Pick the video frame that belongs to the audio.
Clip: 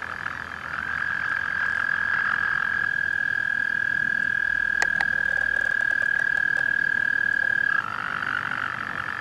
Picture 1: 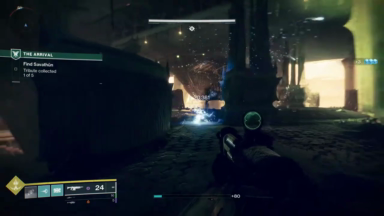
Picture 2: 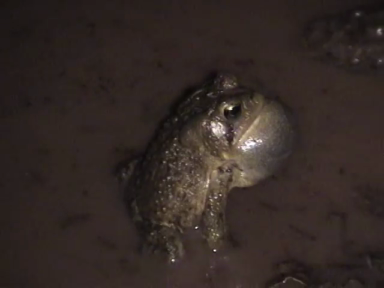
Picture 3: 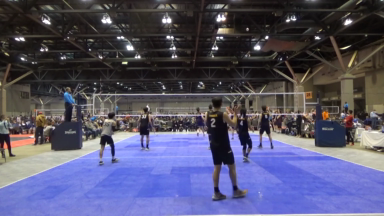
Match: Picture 2